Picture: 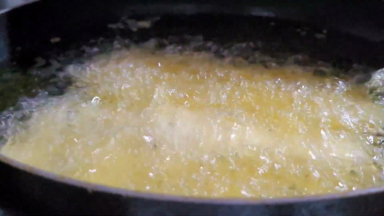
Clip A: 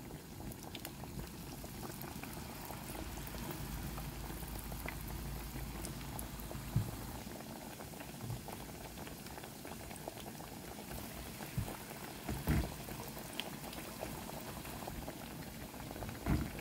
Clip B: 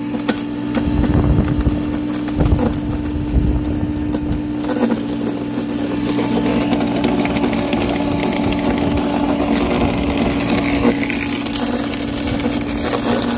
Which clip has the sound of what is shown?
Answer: A